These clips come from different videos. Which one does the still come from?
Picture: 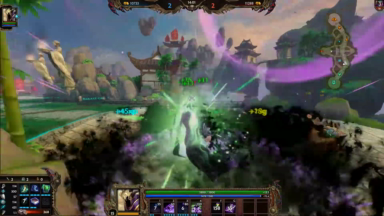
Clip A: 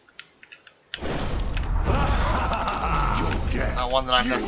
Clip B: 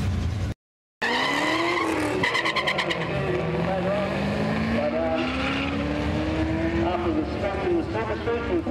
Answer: A